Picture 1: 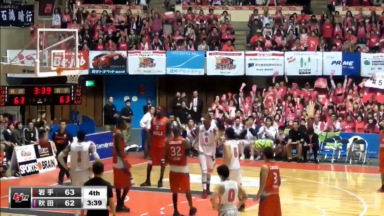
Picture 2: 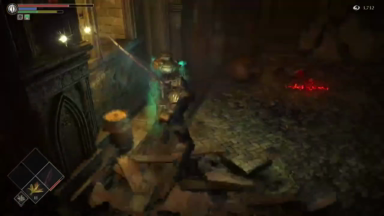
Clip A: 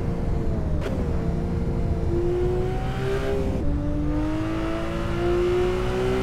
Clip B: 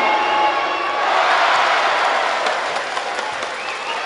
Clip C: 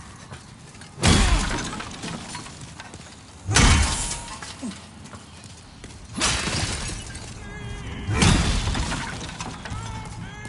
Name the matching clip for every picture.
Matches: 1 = B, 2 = C